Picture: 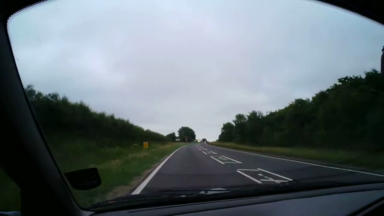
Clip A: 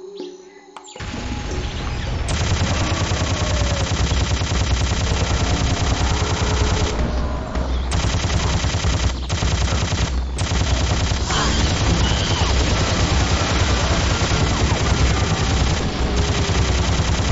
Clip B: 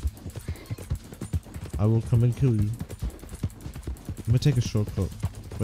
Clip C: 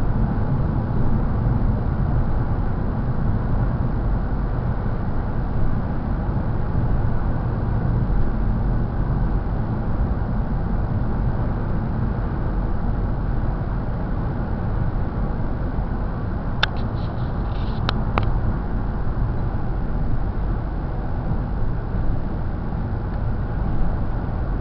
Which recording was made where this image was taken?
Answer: C